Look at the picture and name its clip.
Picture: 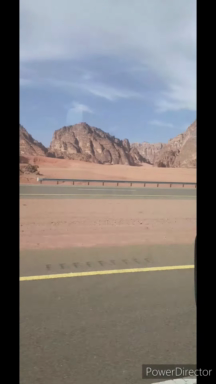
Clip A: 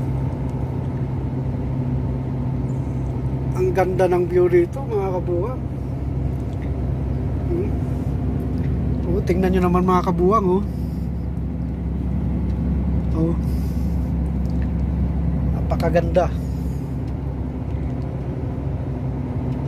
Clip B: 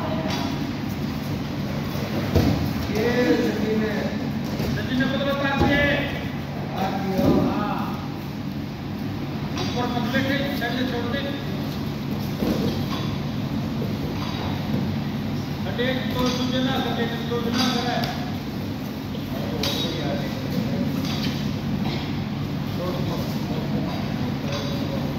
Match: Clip A